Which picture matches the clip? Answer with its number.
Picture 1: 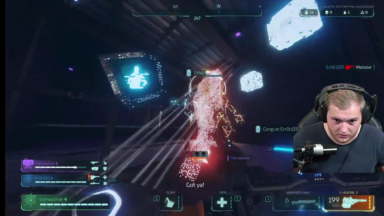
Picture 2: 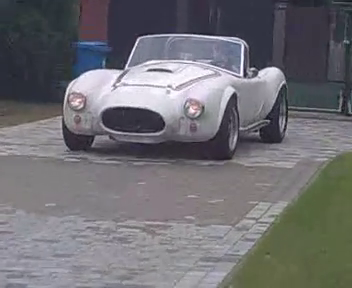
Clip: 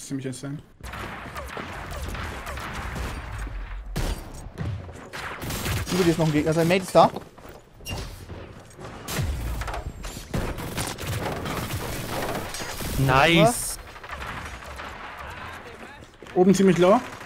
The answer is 1